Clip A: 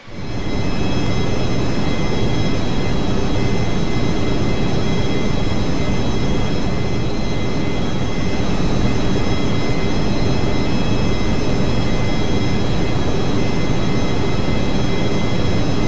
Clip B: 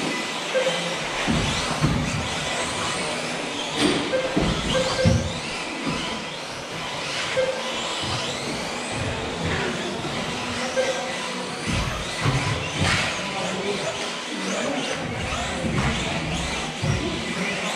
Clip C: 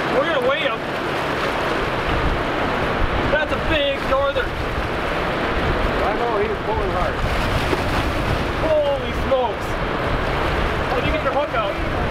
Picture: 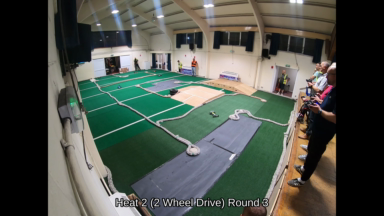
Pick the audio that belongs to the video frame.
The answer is B